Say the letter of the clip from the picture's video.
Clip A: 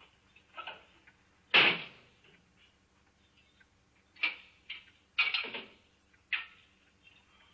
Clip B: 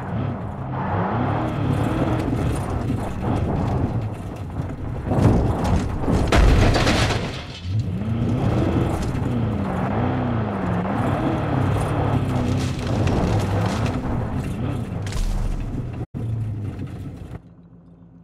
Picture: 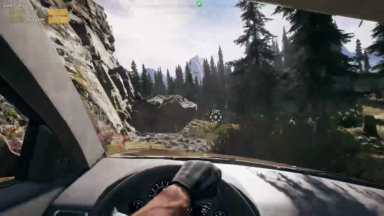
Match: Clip B